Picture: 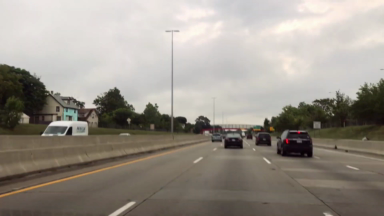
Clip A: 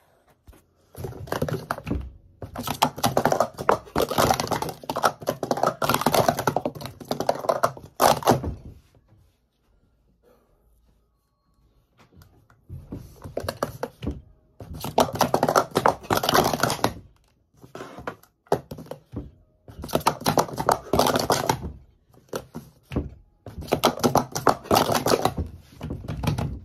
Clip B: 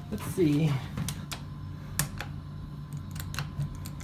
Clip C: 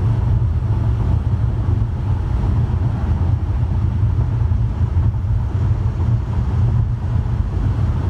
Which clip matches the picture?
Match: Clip C